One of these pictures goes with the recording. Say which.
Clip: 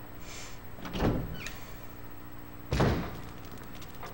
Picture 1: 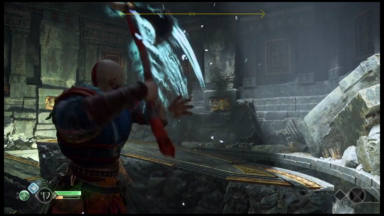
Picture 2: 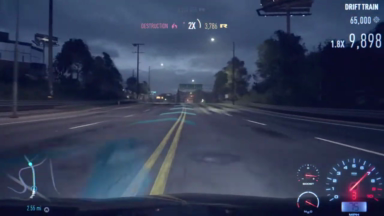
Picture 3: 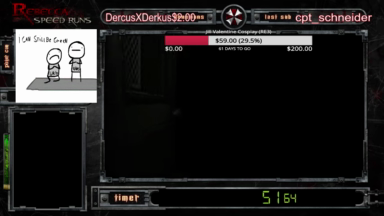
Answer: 3